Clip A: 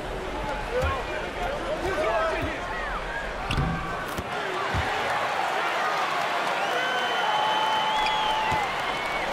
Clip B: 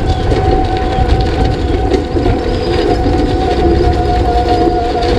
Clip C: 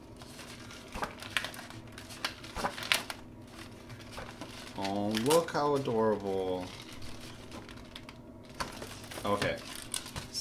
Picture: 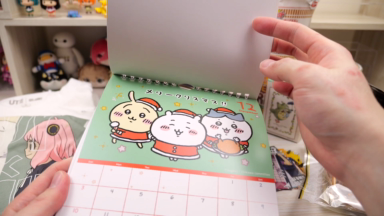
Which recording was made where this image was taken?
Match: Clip C